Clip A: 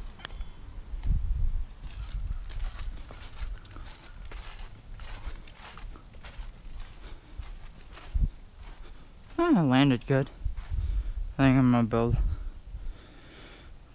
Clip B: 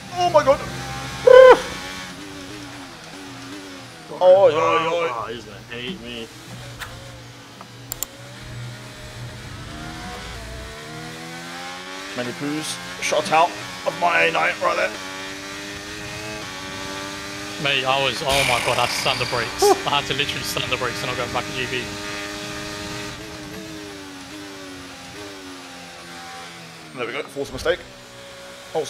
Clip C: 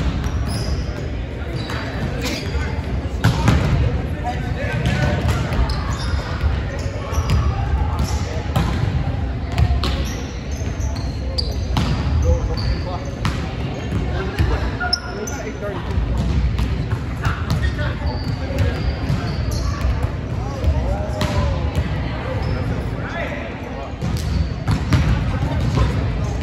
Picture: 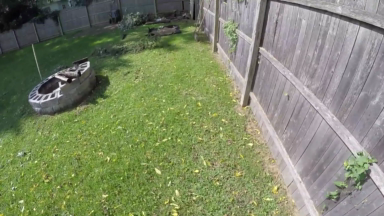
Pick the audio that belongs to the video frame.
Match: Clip A